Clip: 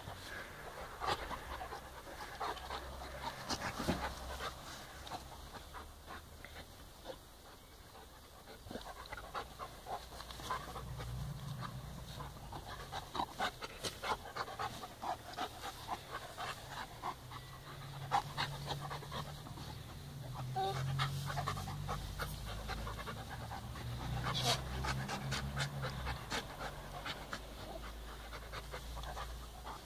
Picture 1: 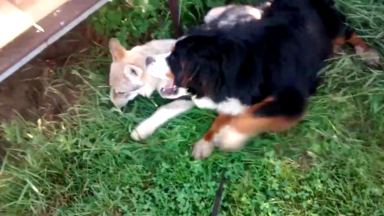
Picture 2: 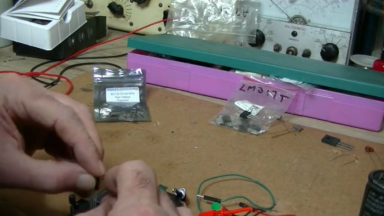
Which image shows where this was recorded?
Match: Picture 1